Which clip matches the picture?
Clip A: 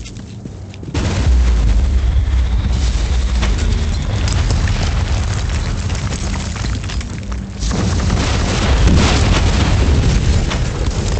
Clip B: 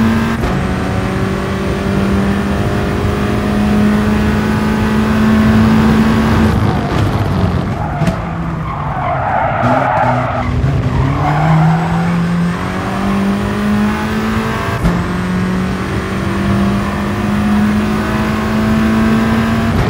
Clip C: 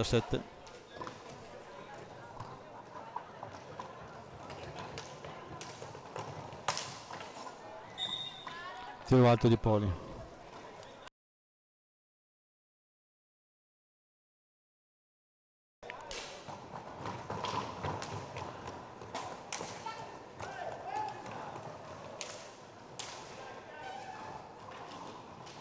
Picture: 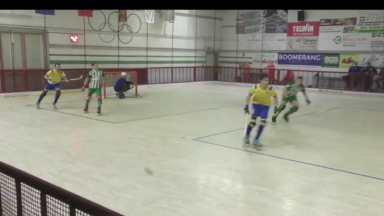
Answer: C